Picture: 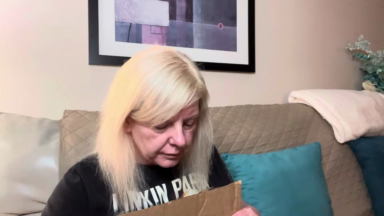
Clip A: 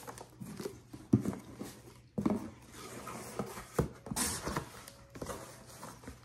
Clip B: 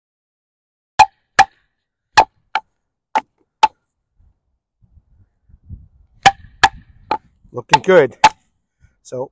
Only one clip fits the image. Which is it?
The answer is A